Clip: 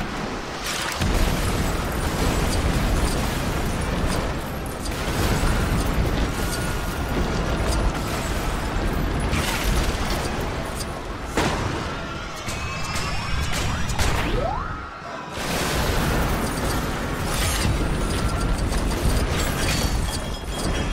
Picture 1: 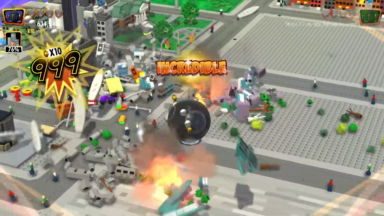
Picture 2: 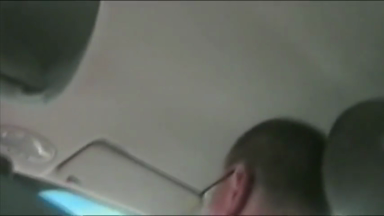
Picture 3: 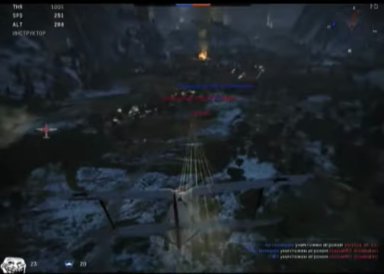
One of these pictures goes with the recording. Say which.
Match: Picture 1